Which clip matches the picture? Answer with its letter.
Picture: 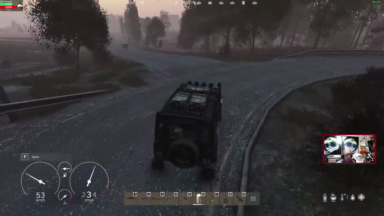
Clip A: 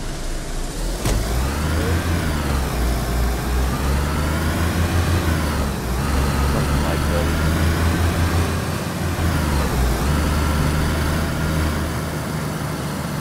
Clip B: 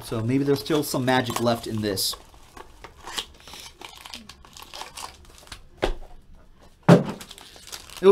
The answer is A